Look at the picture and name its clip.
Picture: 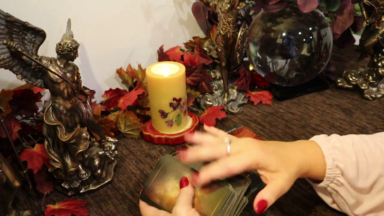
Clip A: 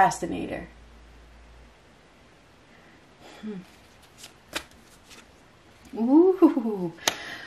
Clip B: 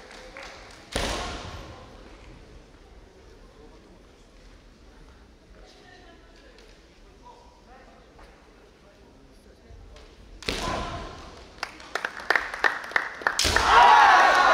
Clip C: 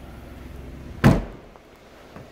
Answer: A